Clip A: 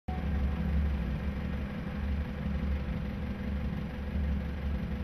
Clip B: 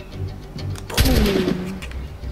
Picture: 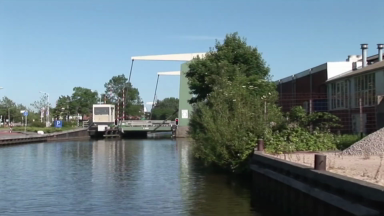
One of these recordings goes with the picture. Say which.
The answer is A